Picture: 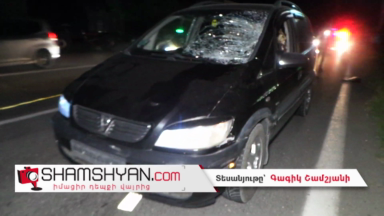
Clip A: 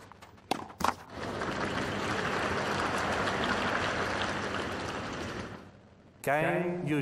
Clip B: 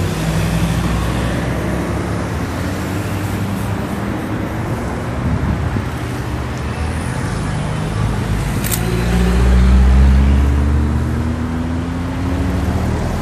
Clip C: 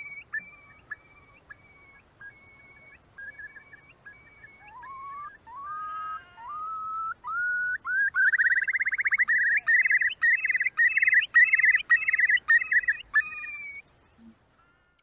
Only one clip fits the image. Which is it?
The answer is B